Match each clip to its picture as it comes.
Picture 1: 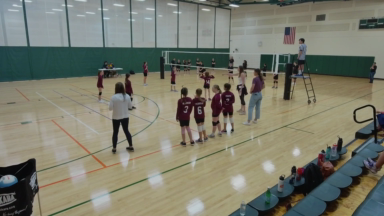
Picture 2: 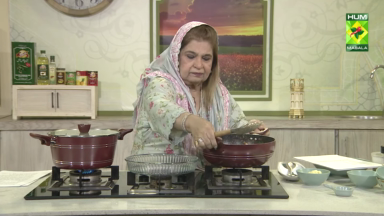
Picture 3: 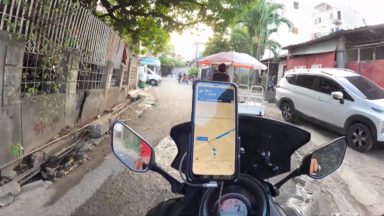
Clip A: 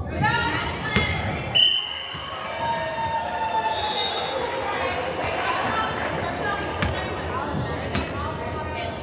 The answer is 1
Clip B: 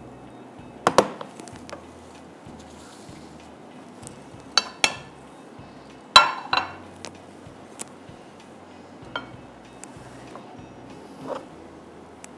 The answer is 2